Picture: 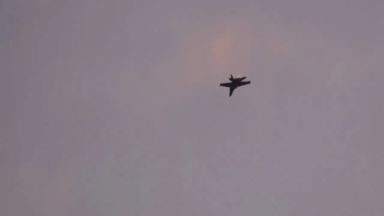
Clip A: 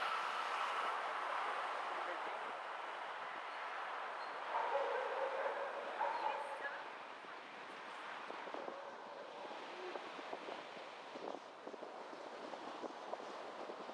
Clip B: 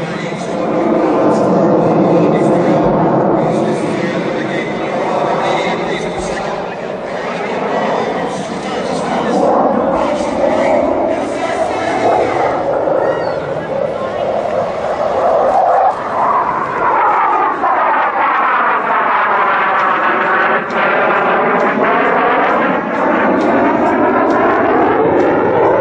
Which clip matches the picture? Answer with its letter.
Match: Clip B